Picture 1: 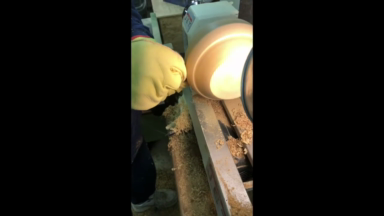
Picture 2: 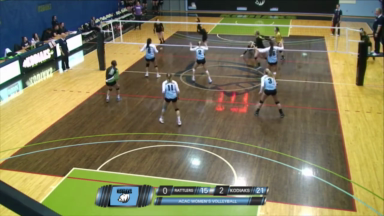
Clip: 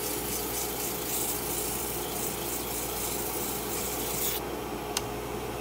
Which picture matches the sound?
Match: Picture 1